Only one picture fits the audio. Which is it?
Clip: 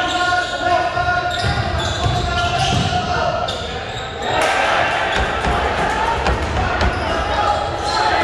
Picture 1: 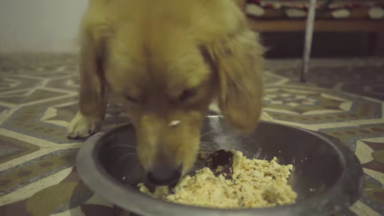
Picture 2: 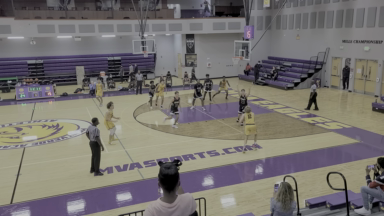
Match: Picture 2